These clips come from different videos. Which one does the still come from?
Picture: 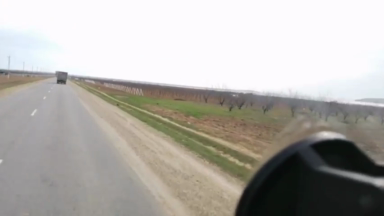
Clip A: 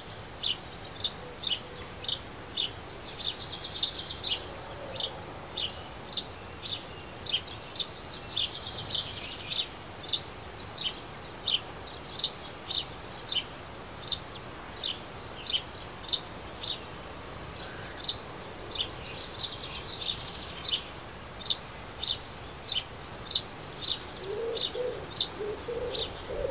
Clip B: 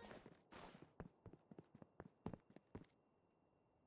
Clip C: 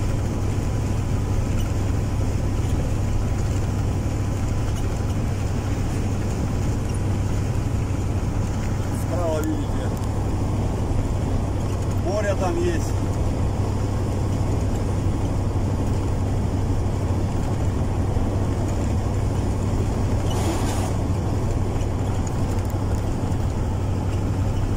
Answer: C